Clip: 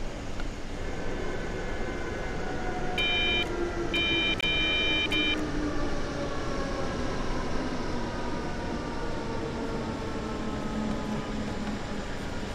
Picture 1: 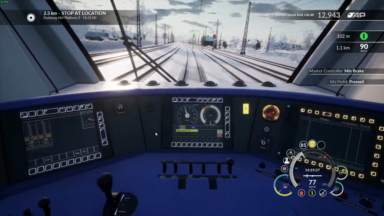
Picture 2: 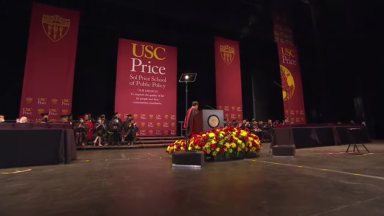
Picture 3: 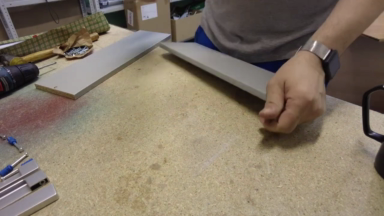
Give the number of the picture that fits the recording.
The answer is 1